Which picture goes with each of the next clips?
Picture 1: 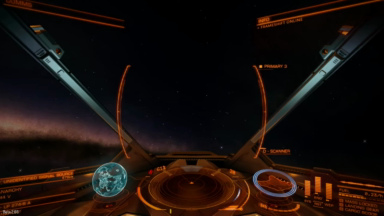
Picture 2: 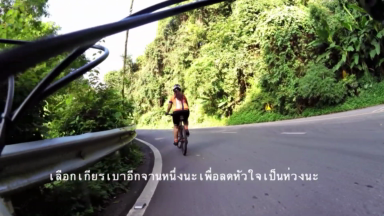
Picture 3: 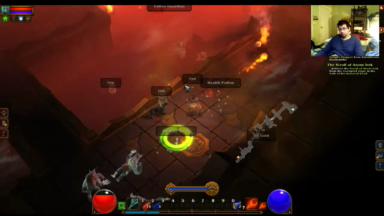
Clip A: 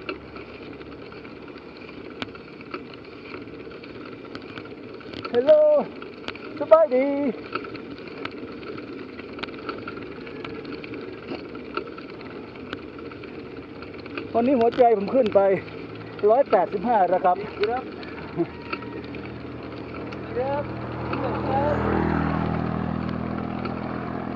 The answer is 2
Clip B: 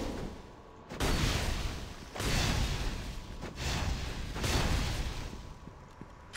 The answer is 3